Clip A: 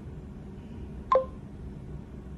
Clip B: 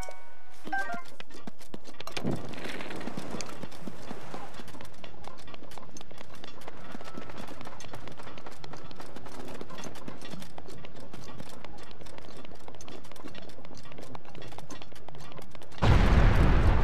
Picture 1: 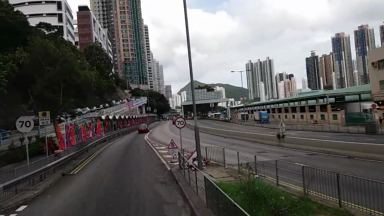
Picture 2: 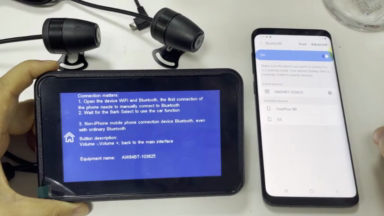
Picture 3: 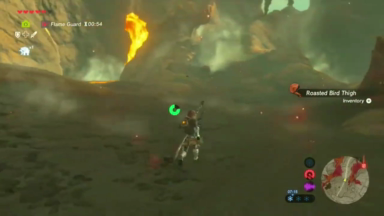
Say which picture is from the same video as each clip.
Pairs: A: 2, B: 3